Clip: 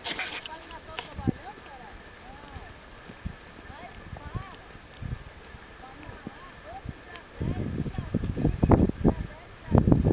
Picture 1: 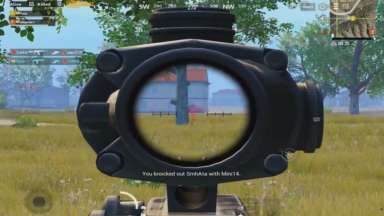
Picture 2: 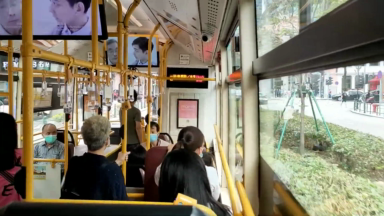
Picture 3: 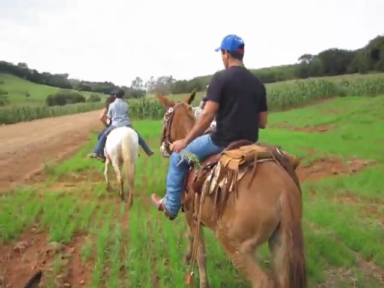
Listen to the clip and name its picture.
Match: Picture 3